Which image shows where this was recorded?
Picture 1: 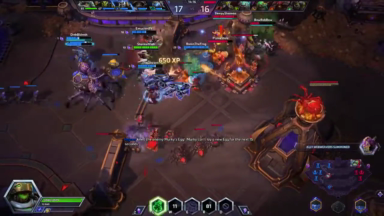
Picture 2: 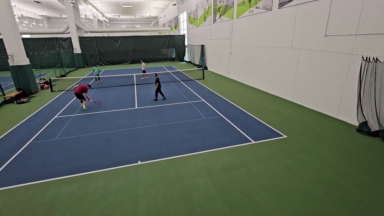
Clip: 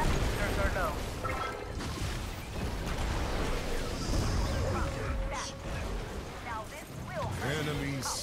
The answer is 1